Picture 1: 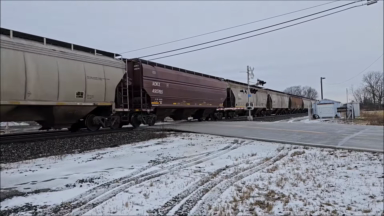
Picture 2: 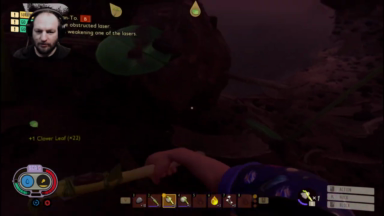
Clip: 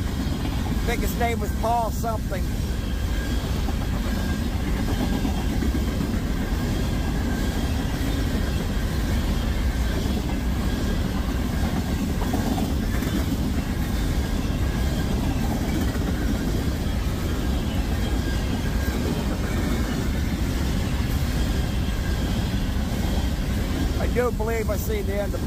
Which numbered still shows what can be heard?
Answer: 1